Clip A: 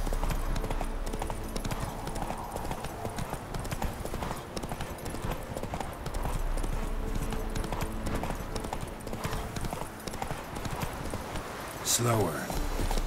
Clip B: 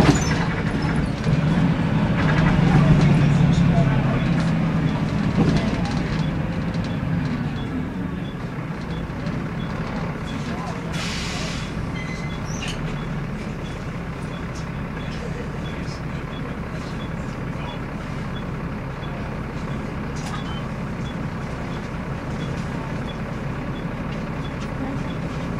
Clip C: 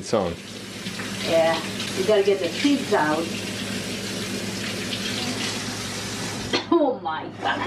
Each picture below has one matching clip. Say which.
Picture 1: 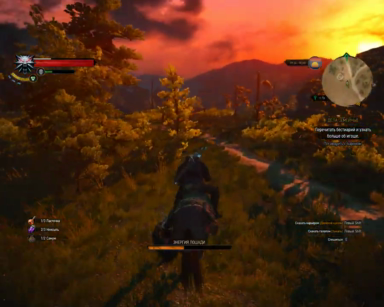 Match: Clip A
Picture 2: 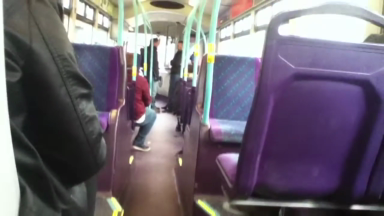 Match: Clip B